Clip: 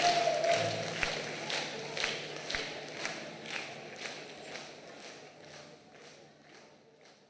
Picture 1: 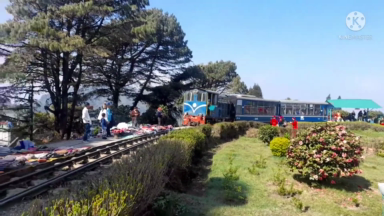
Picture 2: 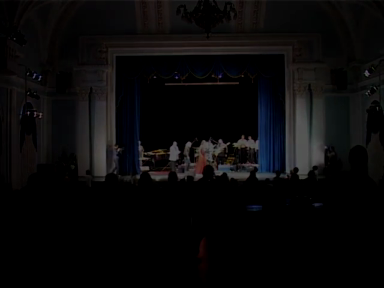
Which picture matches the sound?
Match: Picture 2